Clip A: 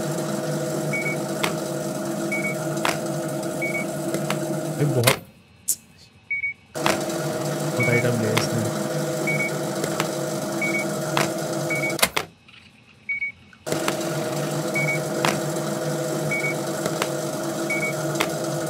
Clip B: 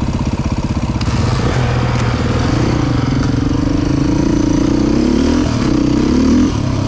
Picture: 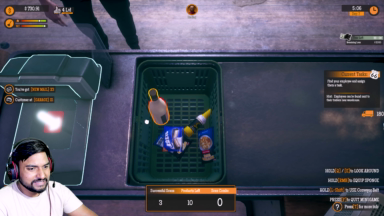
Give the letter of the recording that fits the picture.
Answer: A